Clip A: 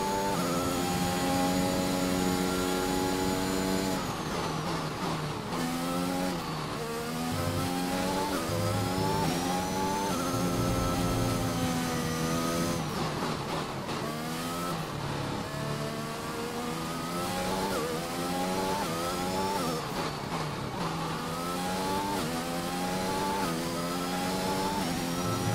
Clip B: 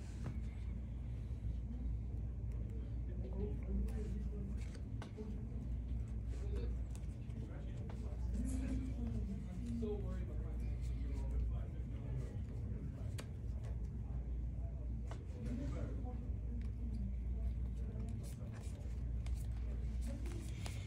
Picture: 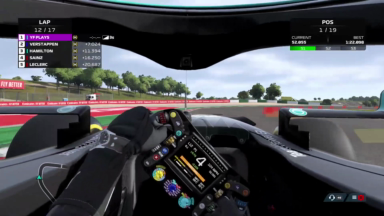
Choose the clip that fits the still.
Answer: A